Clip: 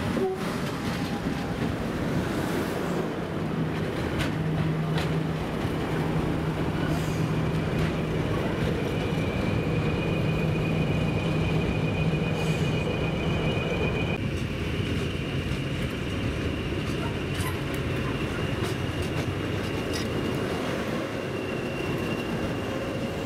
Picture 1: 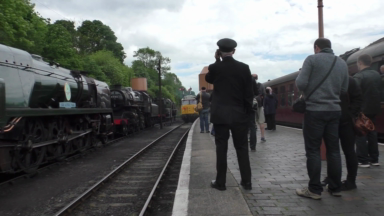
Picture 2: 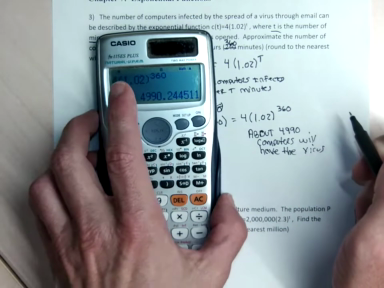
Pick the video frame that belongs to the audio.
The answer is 1